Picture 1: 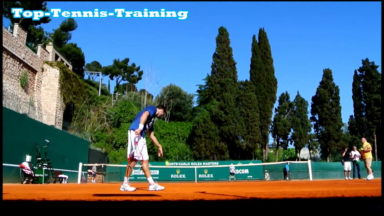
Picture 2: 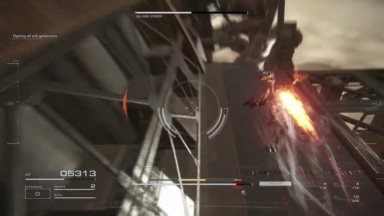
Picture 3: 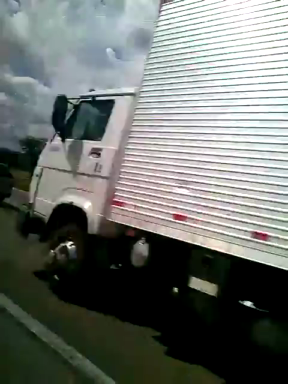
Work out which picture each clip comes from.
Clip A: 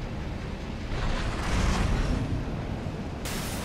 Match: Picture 2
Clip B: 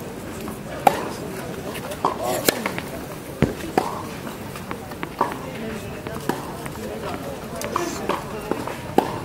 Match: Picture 1